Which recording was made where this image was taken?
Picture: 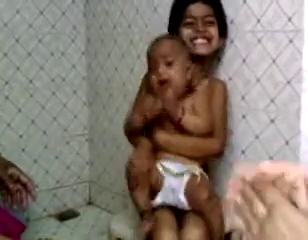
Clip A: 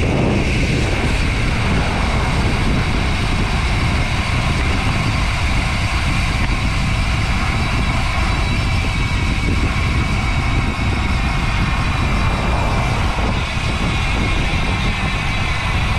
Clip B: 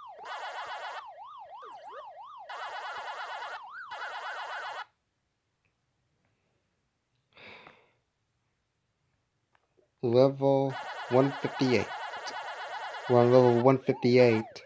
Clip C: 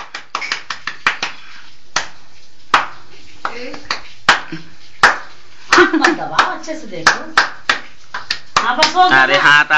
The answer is C